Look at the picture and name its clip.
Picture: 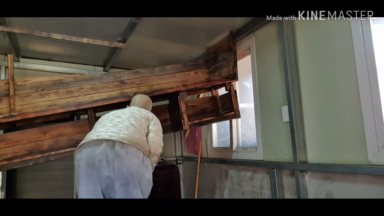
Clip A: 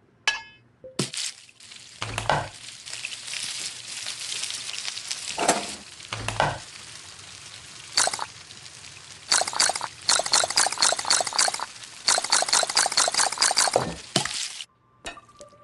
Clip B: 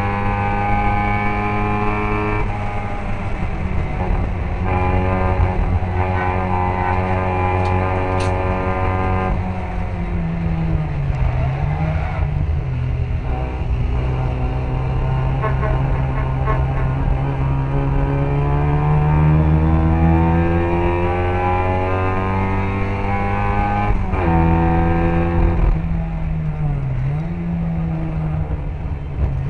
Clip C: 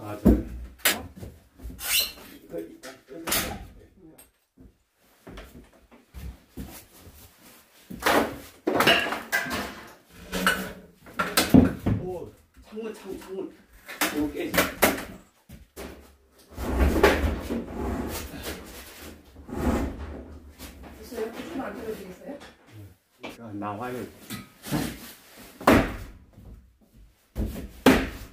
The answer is C